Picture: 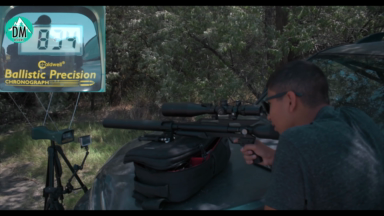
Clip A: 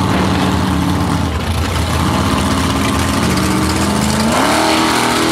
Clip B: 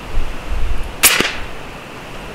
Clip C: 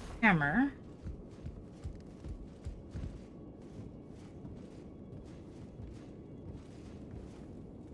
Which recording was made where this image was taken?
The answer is B